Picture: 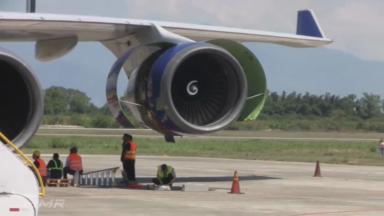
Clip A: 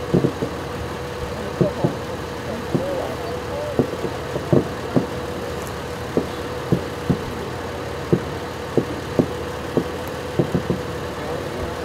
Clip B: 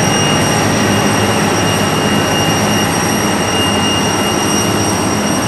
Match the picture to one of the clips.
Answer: B